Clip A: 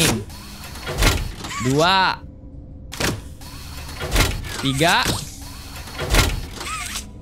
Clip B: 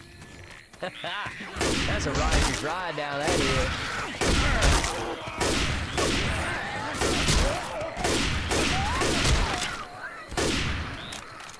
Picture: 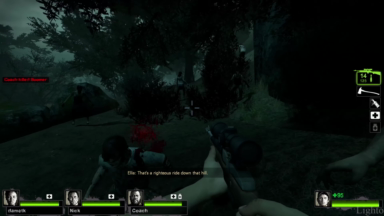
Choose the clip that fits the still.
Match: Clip B